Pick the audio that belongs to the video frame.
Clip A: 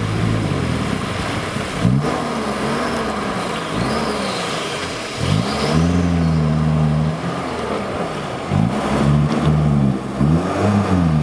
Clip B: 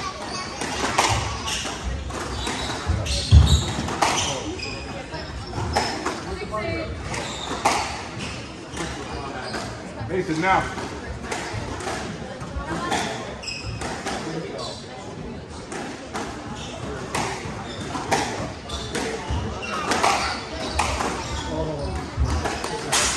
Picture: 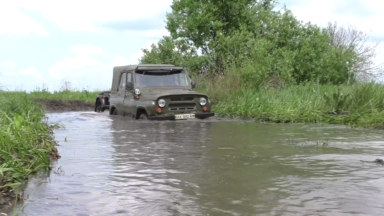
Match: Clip A